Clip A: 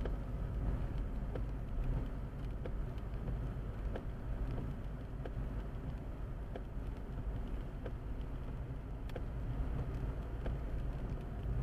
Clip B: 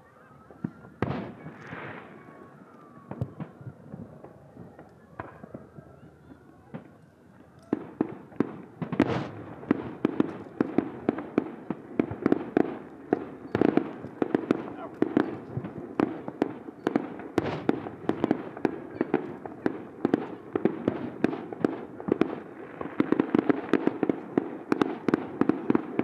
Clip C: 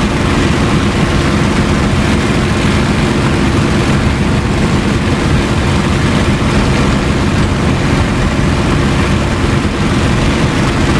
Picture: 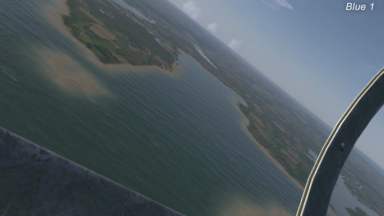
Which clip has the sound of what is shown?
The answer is C